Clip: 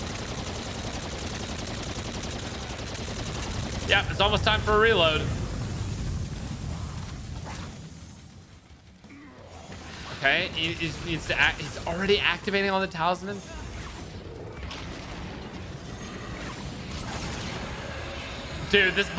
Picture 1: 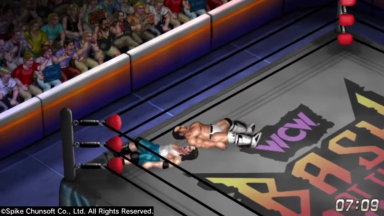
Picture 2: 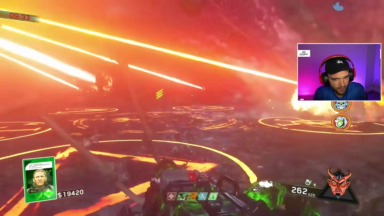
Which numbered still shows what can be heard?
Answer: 2